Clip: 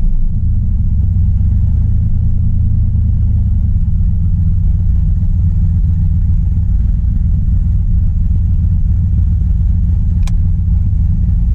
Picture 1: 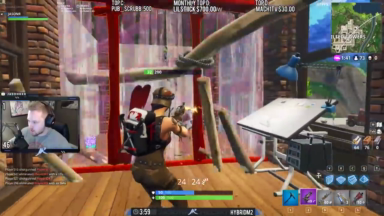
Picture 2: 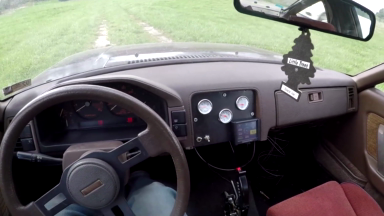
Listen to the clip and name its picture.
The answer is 2